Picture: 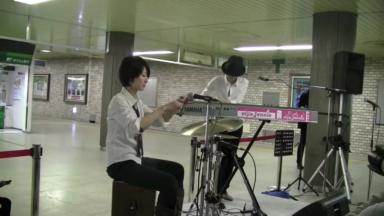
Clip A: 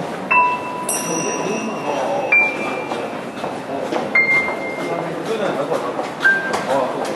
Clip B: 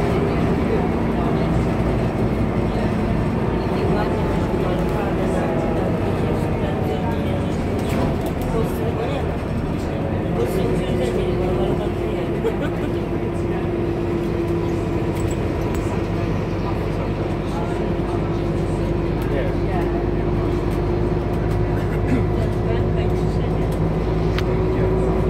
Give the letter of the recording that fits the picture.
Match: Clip A